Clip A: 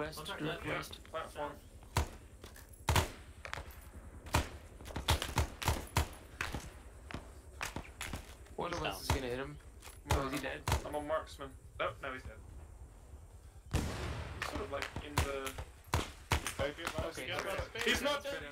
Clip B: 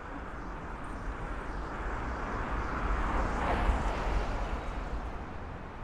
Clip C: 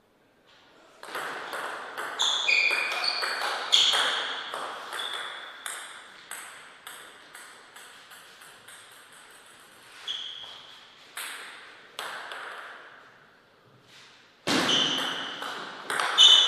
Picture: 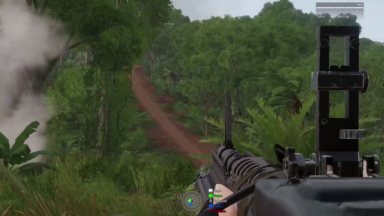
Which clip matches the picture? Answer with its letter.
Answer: A